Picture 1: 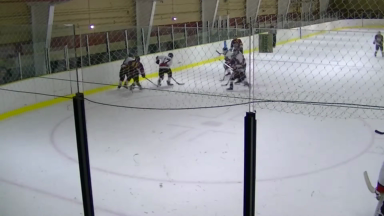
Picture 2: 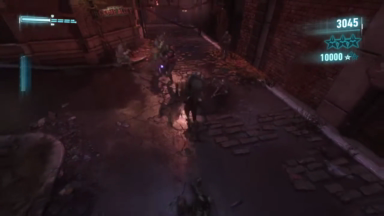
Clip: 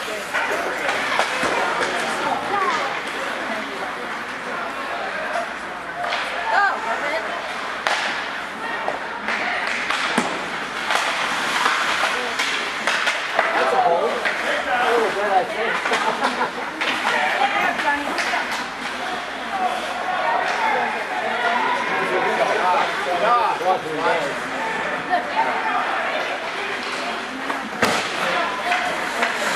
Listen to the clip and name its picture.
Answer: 1